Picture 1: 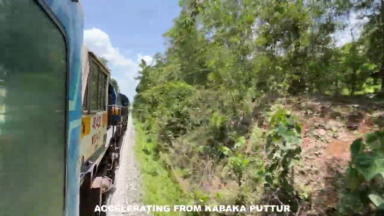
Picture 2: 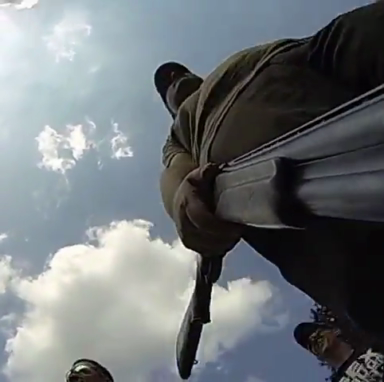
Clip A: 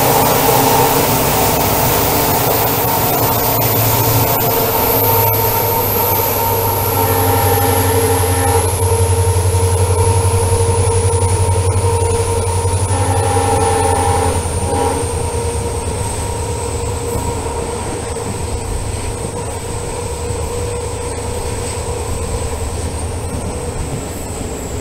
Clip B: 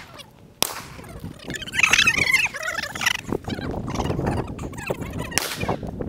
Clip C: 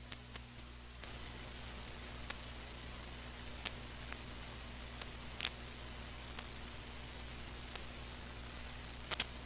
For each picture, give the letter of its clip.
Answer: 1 A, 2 B